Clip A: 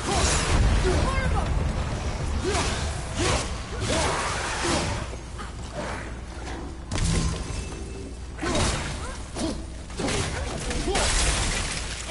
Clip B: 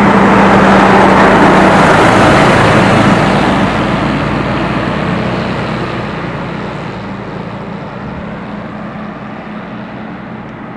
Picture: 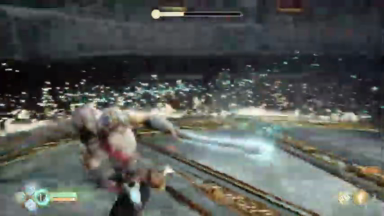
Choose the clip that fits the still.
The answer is A